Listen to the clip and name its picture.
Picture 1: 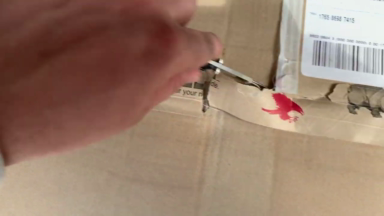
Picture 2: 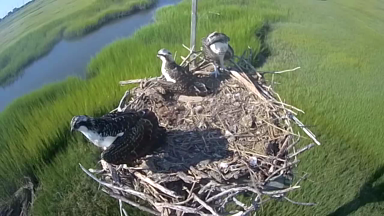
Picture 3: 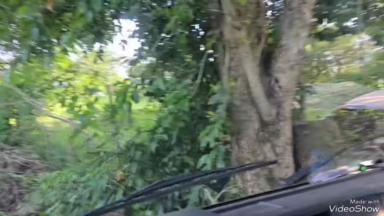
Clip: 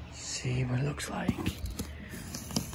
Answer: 1